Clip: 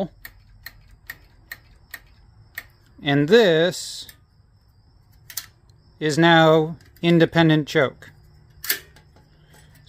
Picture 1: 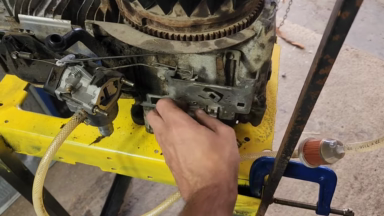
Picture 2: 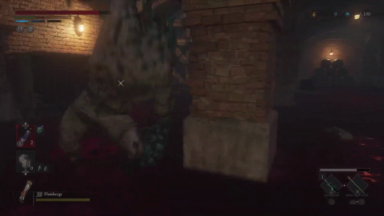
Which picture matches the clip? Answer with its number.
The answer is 1